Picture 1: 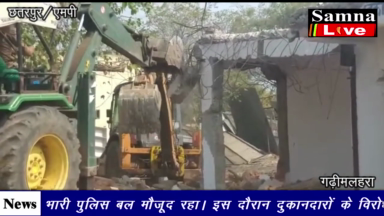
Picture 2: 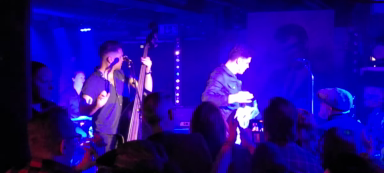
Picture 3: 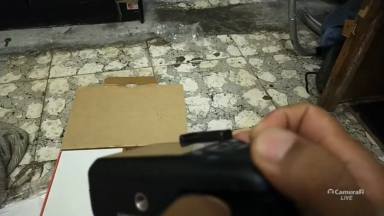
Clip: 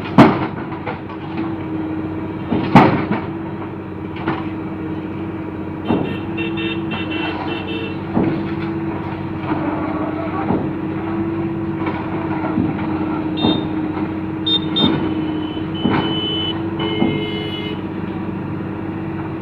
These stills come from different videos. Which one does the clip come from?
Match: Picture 1